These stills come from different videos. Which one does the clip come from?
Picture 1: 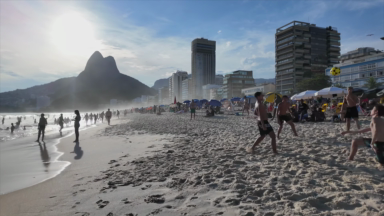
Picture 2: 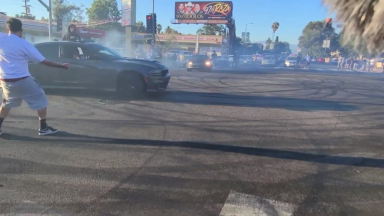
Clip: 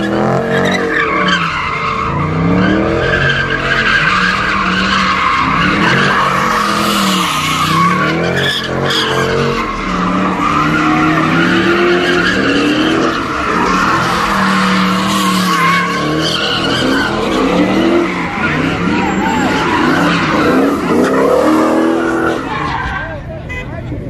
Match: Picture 2